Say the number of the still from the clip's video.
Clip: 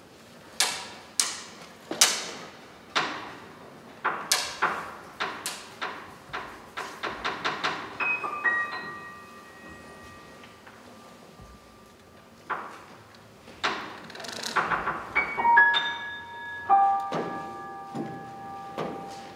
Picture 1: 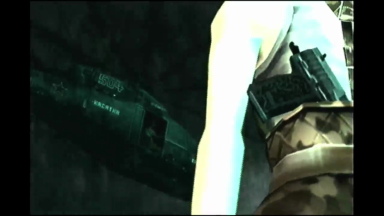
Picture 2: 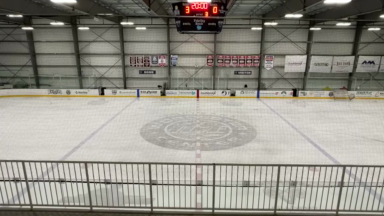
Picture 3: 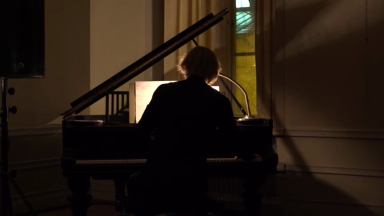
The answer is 3